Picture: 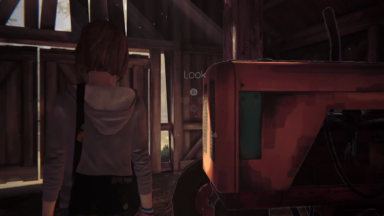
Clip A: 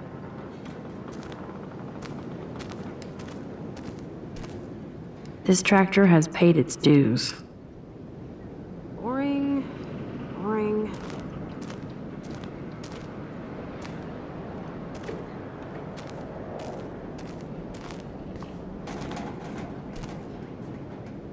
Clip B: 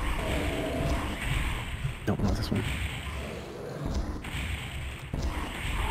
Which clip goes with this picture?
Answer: A